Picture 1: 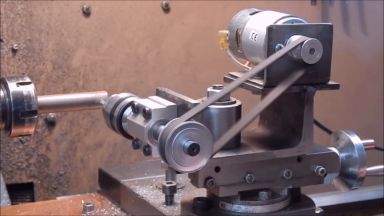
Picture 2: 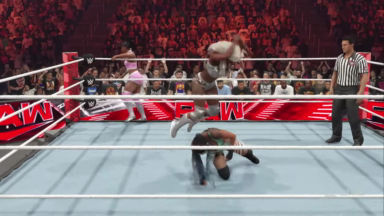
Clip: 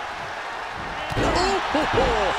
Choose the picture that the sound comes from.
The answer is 2